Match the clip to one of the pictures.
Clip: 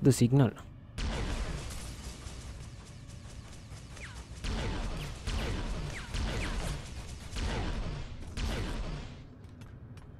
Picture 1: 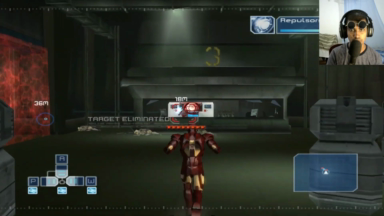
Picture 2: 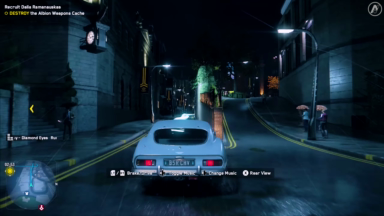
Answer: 1